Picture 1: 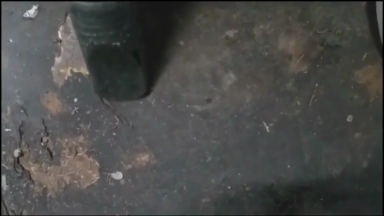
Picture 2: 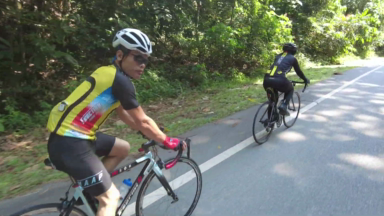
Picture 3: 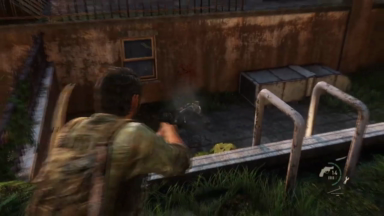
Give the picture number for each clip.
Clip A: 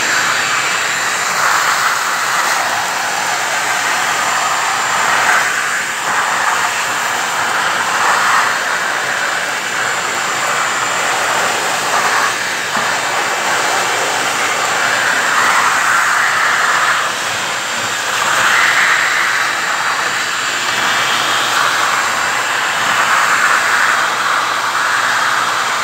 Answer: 1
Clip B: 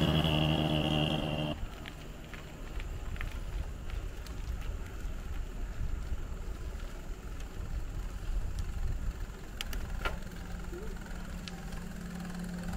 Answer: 2